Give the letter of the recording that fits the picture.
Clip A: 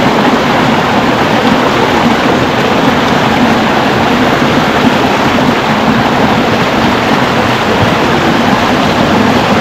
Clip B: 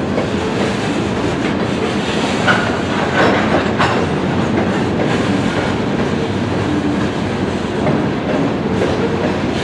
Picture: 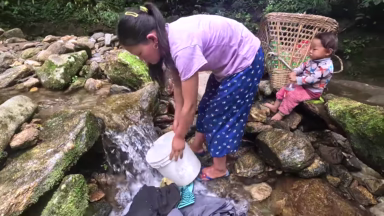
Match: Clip A